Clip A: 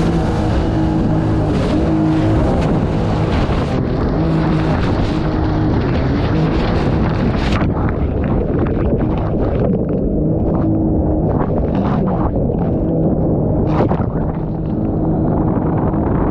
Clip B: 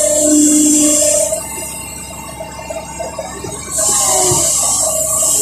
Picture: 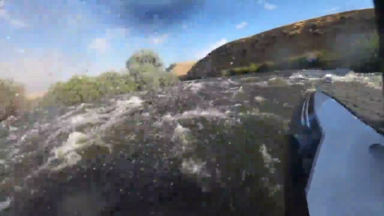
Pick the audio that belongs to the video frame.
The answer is A